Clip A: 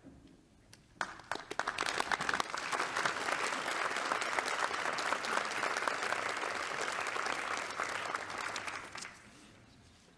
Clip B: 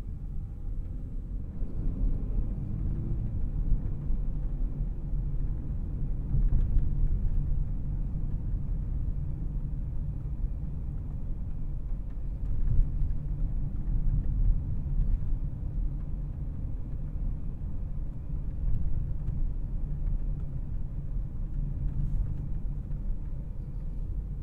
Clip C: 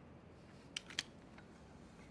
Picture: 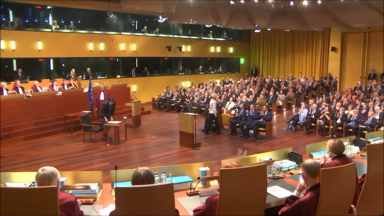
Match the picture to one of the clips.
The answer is A